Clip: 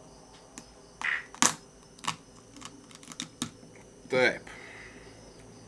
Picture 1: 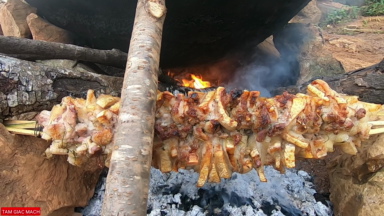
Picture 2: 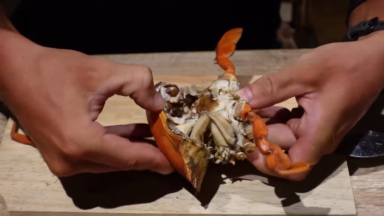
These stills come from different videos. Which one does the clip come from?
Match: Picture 2